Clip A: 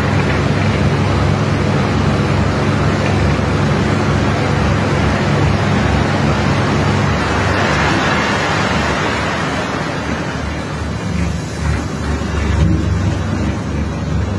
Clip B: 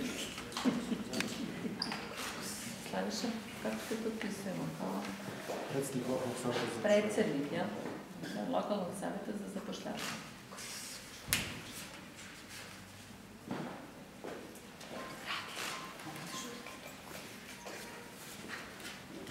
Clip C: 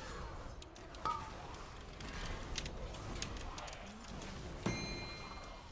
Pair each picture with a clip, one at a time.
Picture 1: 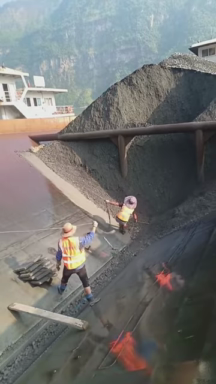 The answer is A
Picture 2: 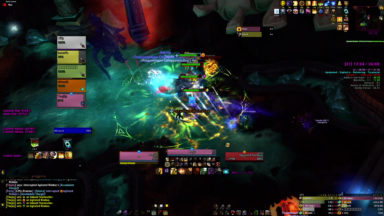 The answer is C